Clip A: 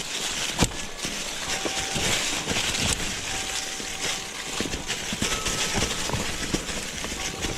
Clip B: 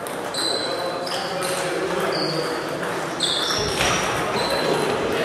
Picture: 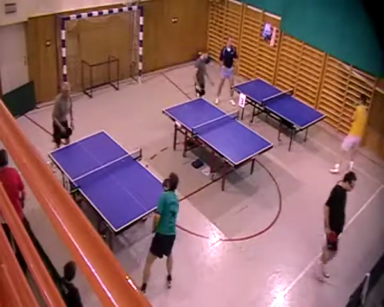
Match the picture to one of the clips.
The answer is B